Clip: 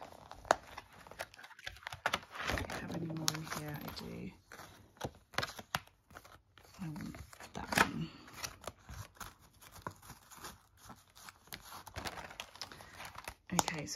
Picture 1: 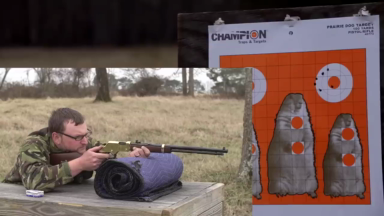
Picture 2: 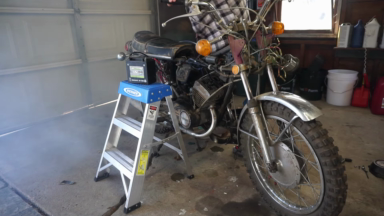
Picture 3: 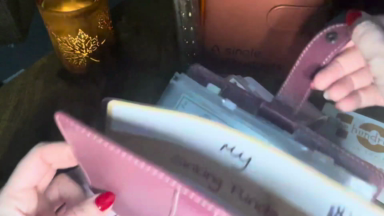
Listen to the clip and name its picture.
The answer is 3